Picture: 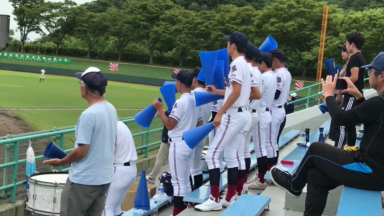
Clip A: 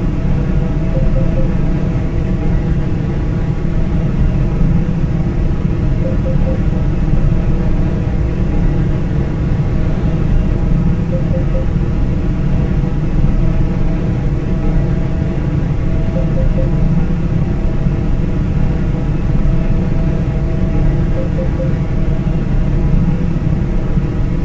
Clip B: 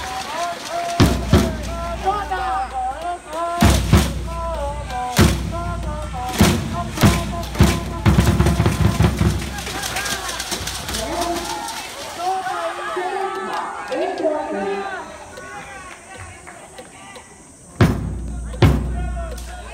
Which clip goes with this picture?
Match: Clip B